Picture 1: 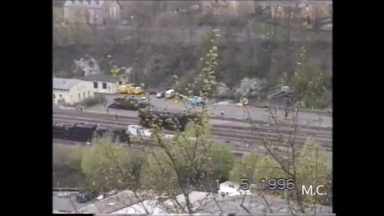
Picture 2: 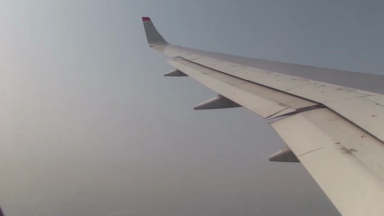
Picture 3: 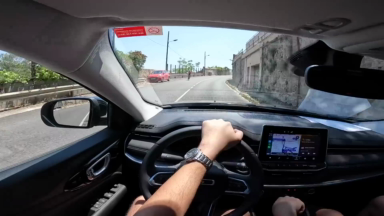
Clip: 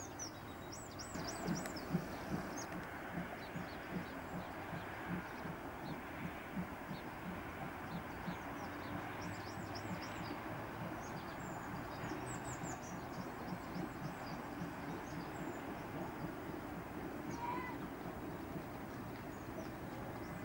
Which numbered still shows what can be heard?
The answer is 1